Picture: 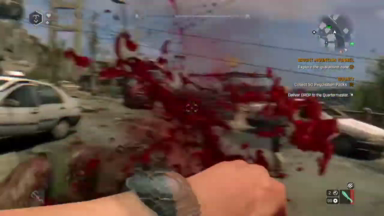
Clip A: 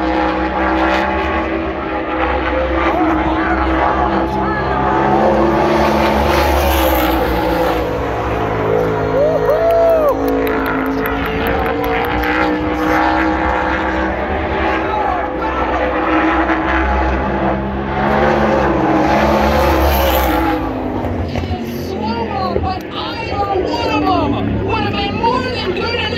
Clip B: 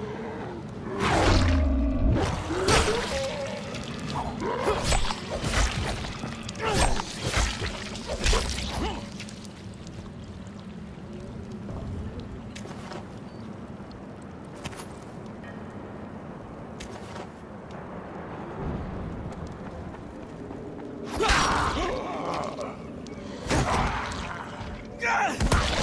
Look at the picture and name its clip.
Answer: B